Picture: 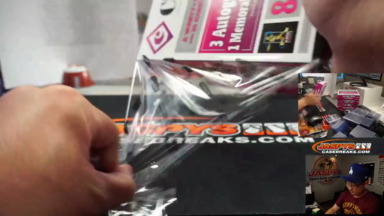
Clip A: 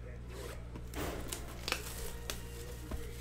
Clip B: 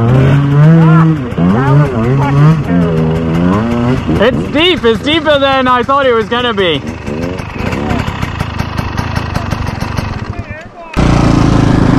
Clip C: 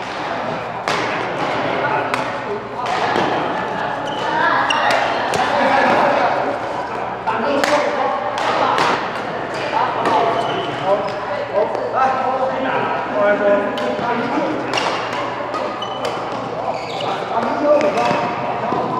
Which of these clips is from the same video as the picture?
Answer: A